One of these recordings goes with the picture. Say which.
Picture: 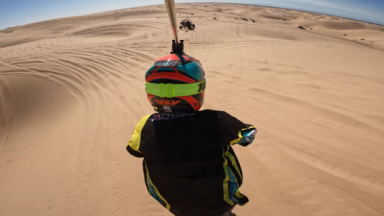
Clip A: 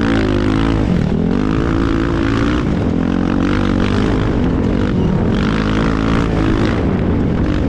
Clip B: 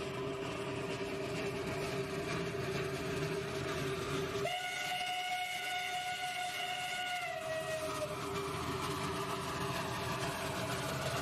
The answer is A